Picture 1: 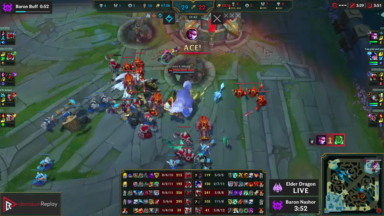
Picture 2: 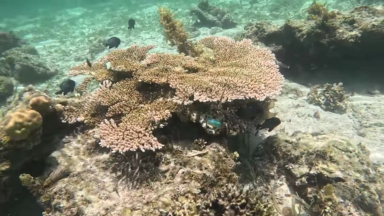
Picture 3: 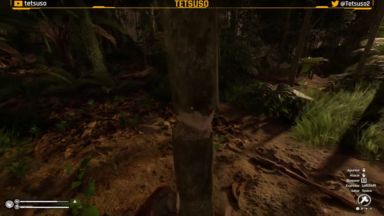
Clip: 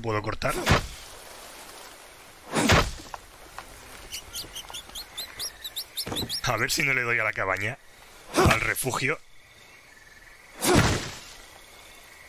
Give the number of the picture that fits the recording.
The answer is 3